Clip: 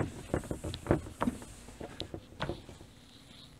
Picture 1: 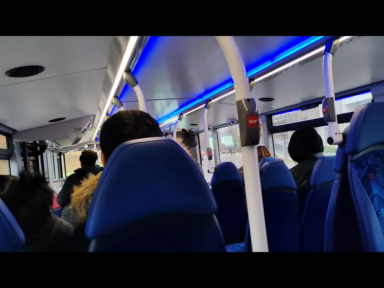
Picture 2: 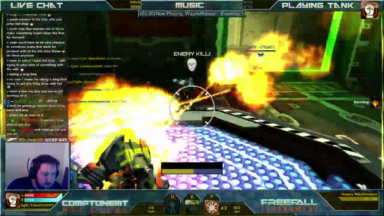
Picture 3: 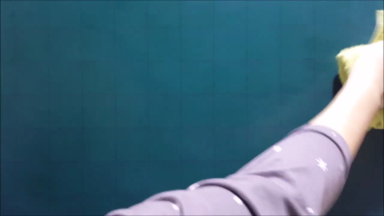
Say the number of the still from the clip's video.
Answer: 3